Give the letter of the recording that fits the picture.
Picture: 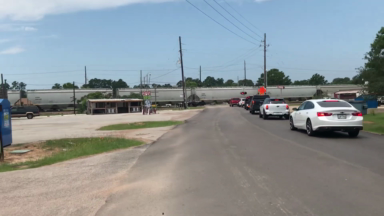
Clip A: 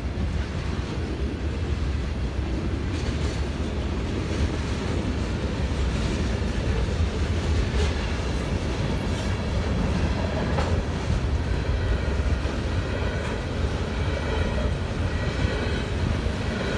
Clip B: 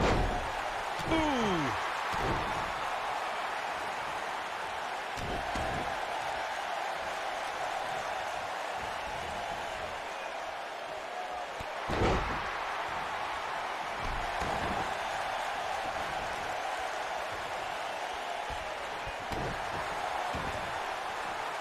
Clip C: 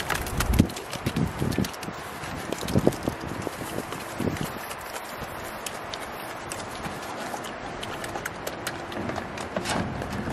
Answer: A